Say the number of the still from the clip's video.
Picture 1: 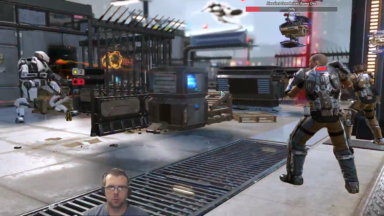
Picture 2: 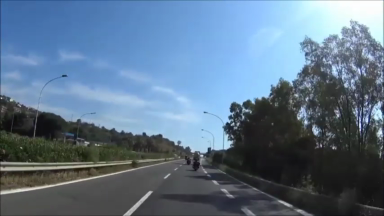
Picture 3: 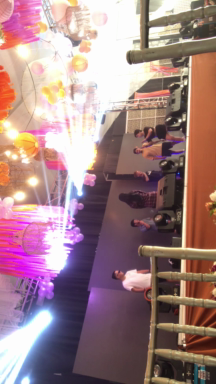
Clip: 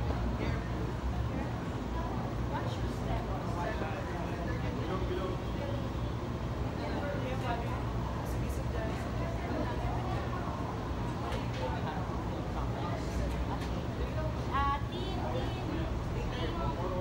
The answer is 3